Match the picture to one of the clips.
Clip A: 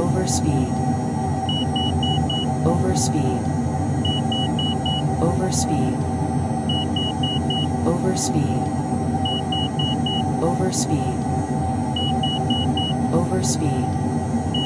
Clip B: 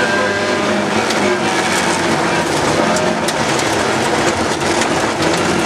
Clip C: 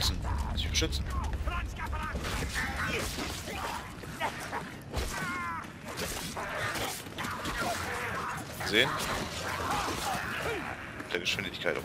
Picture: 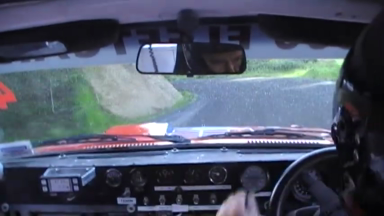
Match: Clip B